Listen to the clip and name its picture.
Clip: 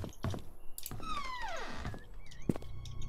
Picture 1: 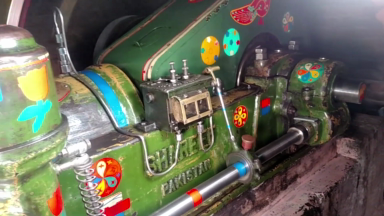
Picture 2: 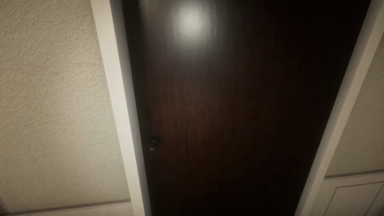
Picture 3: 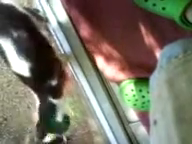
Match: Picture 2